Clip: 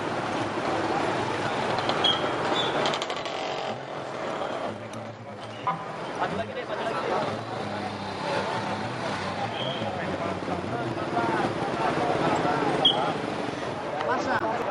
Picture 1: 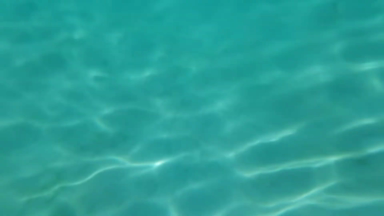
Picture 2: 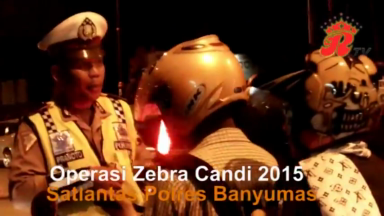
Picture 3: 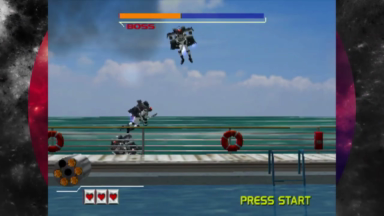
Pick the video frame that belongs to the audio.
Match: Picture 2